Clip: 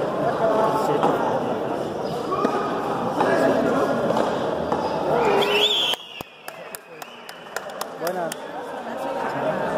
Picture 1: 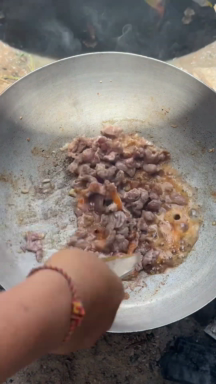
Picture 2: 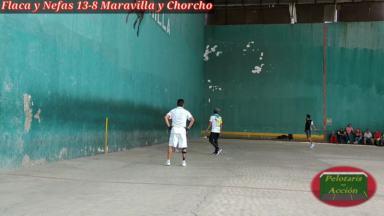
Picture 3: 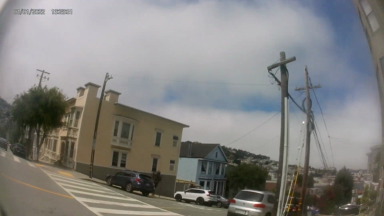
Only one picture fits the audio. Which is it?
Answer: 2